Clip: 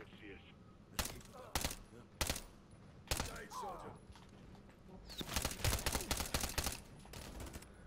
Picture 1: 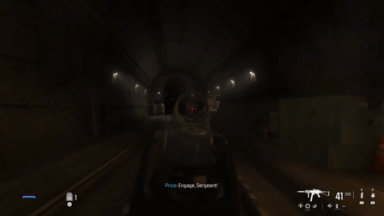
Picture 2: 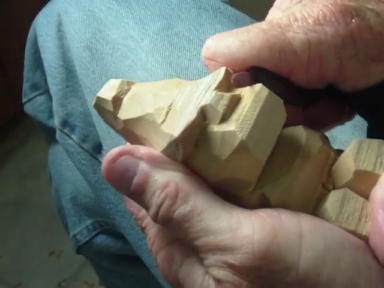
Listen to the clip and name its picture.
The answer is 1